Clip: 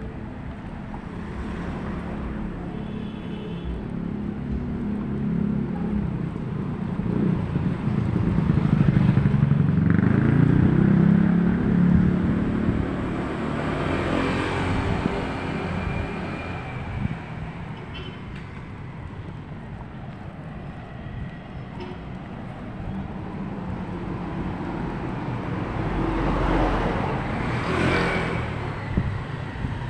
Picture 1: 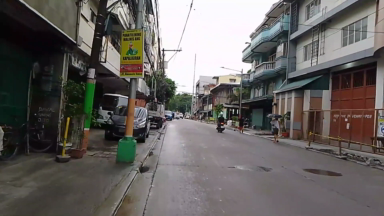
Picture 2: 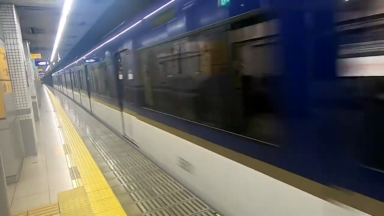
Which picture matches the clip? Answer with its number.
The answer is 1